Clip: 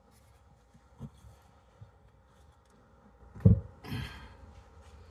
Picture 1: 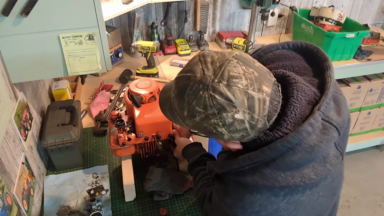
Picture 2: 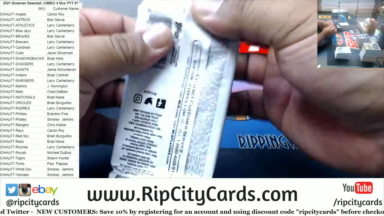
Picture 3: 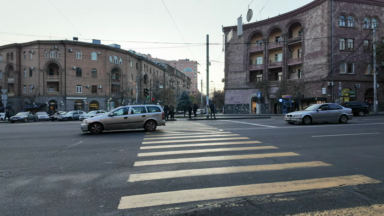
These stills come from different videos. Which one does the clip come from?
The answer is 1